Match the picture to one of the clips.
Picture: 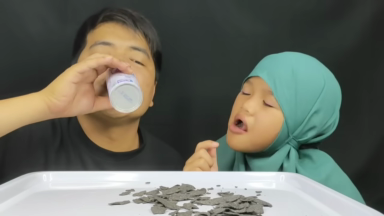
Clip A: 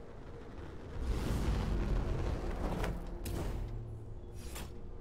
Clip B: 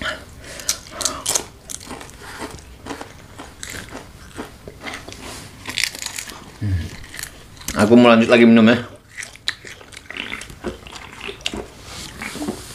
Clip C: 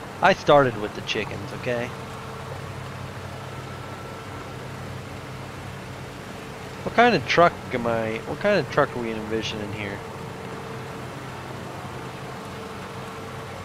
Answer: B